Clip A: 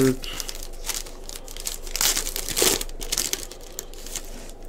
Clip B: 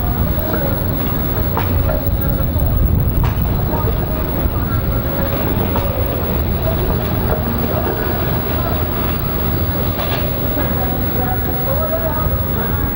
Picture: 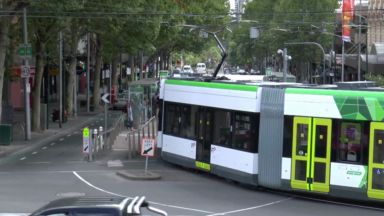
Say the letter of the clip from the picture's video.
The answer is B